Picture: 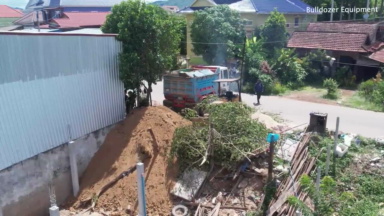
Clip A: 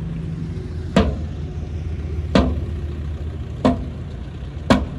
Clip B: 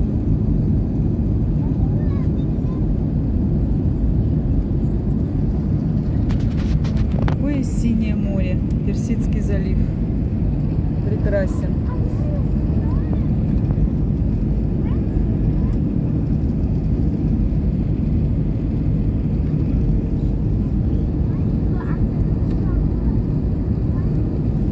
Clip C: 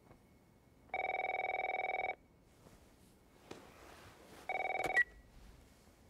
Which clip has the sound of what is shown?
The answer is A